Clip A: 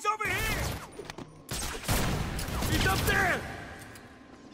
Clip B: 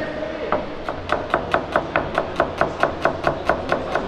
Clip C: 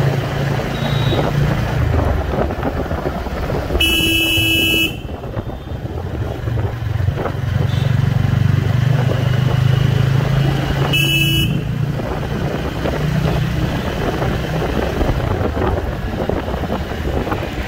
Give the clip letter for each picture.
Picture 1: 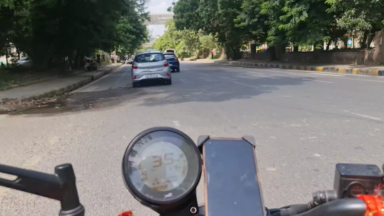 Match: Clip C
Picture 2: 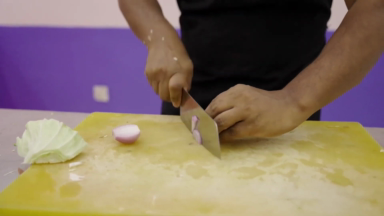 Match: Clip B